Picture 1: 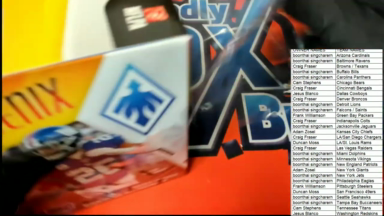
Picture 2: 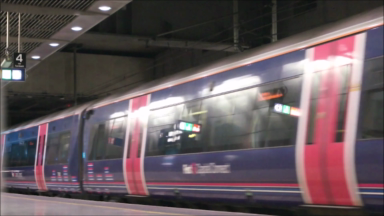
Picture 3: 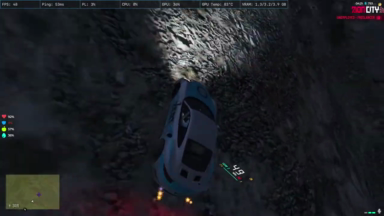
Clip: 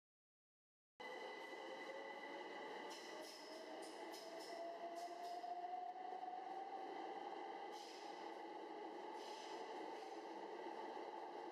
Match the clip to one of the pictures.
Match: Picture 2